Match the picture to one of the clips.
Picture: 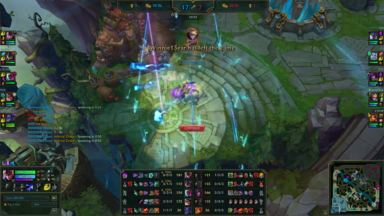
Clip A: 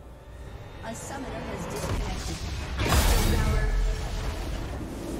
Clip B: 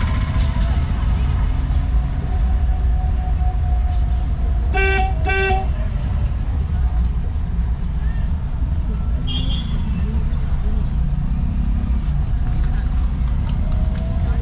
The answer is A